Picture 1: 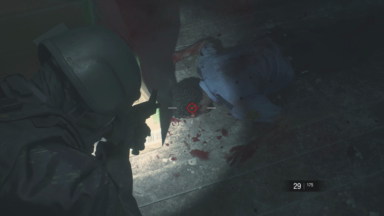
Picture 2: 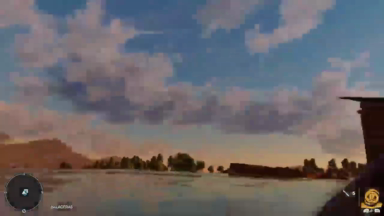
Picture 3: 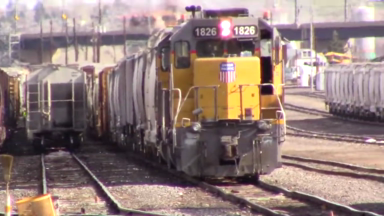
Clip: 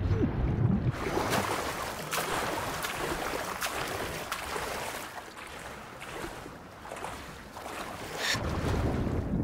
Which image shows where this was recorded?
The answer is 2